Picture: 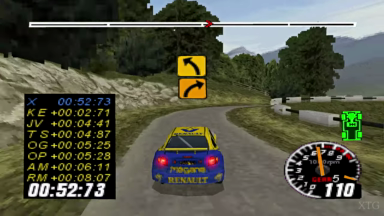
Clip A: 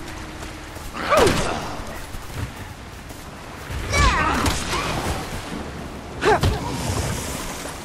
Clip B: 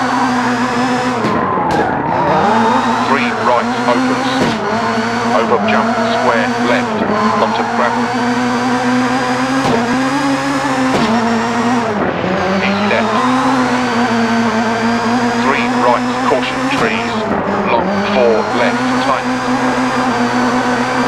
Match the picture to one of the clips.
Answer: B